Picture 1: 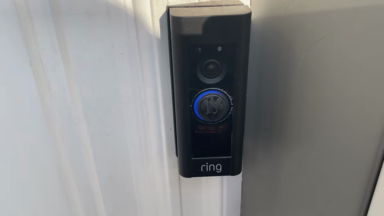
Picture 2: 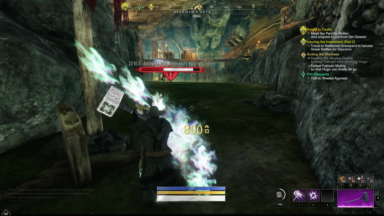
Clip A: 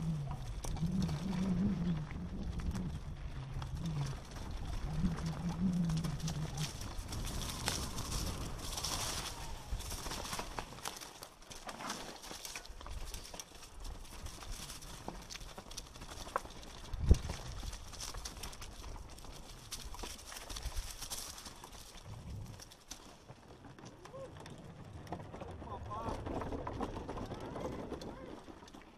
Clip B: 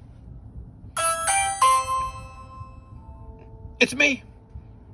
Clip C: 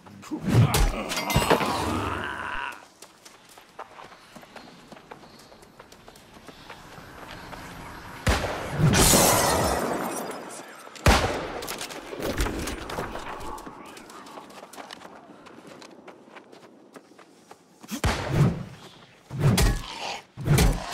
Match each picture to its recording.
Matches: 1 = B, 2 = C